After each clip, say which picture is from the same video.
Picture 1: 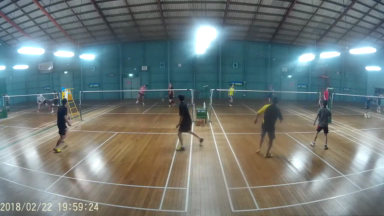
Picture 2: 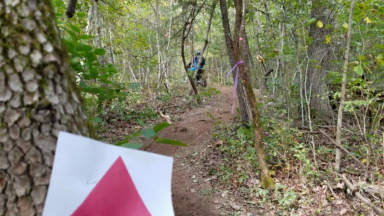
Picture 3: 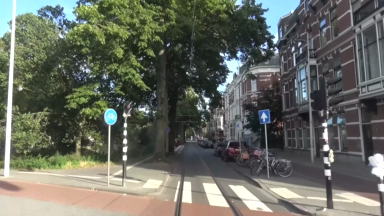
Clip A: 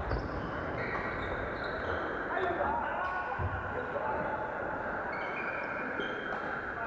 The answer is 1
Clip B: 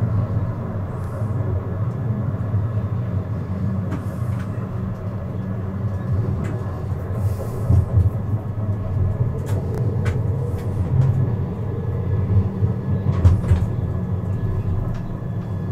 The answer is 3